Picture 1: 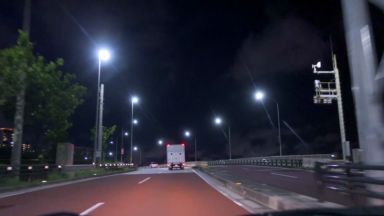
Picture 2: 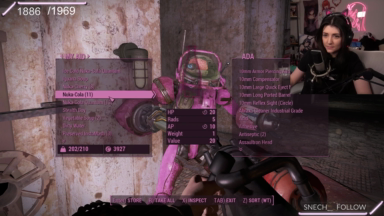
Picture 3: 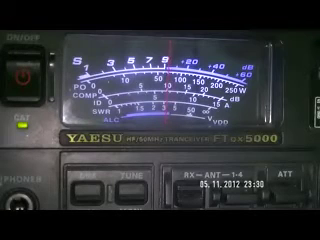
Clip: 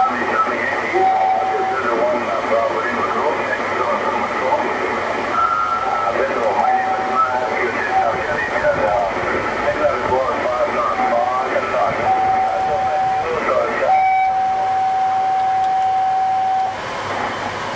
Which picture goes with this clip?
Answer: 3